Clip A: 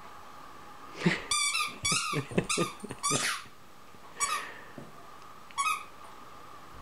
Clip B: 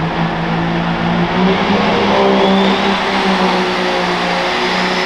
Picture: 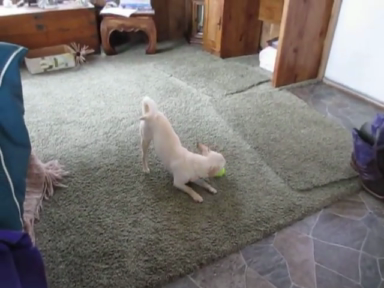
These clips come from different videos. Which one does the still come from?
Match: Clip A